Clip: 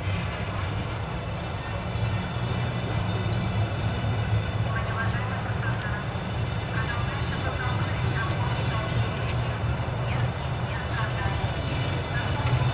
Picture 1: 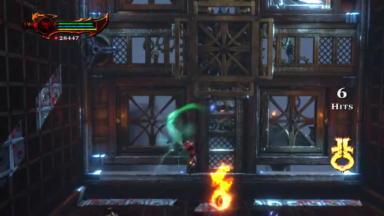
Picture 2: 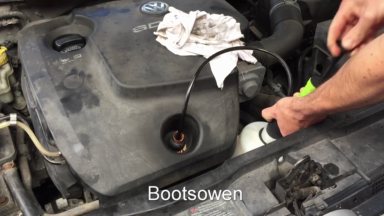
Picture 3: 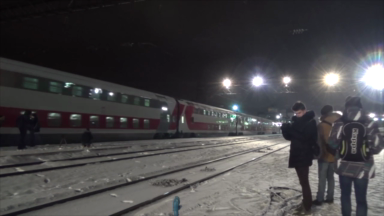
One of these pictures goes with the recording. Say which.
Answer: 3